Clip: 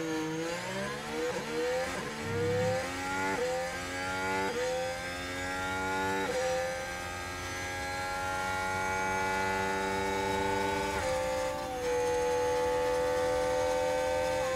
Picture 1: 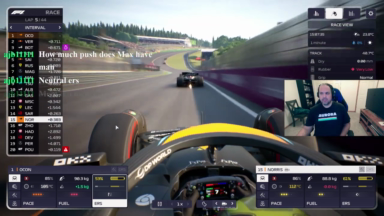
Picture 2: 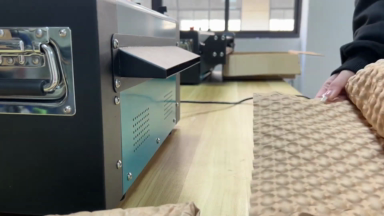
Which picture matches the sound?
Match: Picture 1